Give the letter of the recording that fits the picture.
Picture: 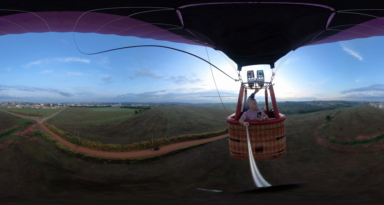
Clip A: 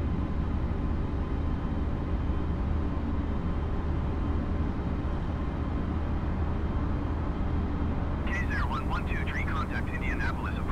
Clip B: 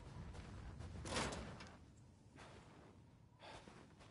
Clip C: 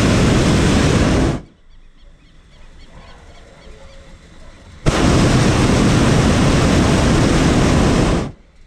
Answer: C